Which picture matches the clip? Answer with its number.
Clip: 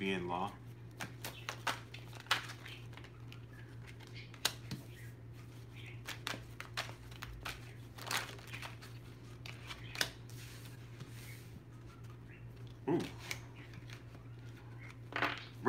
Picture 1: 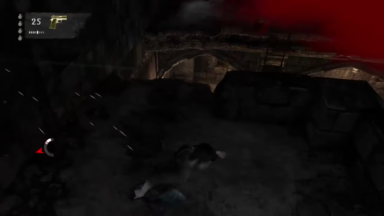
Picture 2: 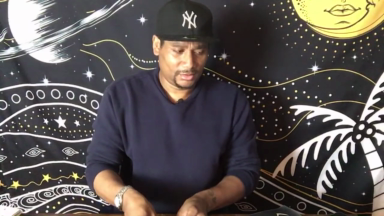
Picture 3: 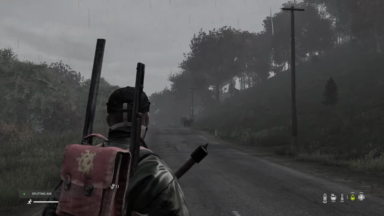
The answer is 2